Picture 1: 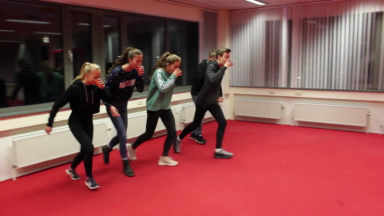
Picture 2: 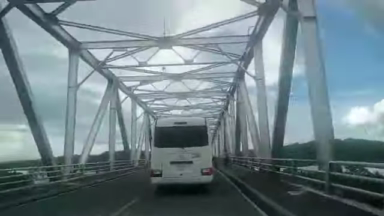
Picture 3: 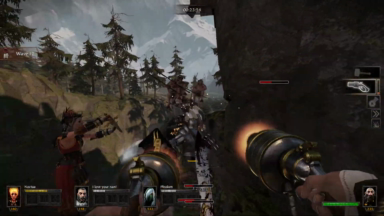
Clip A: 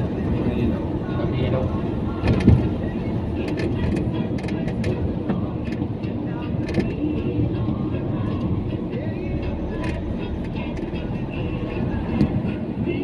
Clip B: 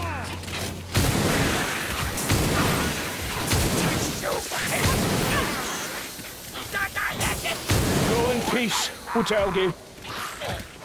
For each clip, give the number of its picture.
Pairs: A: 2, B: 3